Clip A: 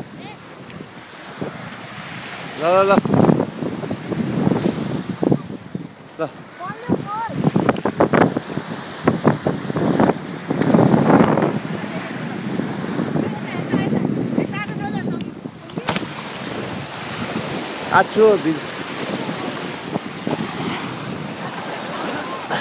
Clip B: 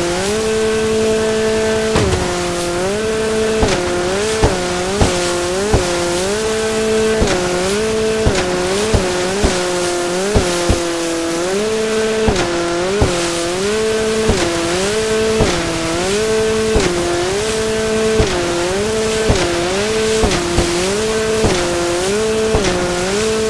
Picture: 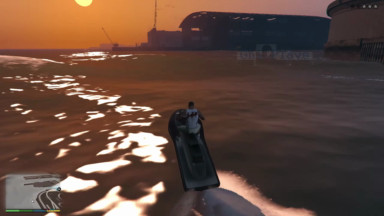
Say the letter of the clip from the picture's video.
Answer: B